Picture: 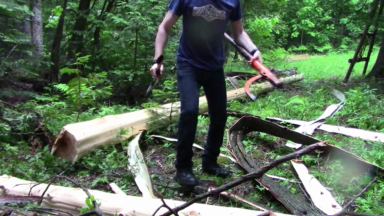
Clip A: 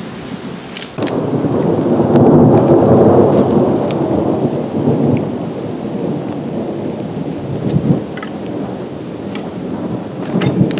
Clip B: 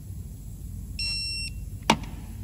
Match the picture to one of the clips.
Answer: A